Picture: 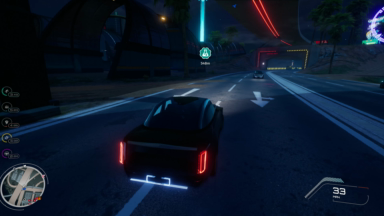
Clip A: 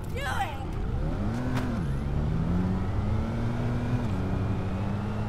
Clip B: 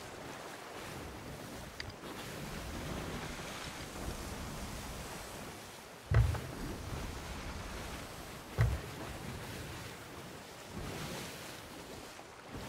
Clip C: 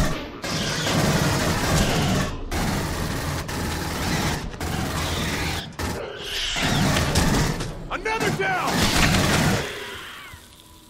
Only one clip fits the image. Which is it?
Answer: A